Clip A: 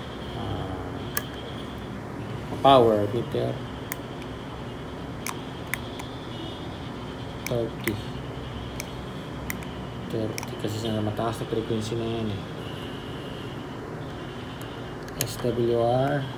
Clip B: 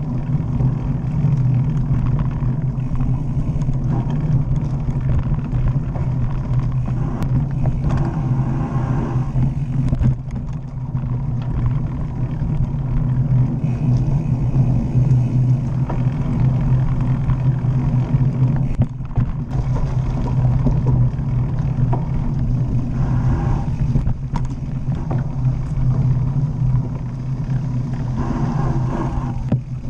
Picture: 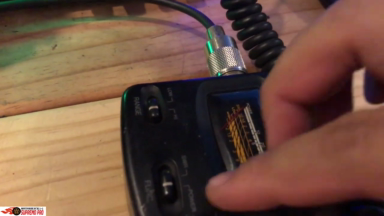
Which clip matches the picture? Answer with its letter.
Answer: A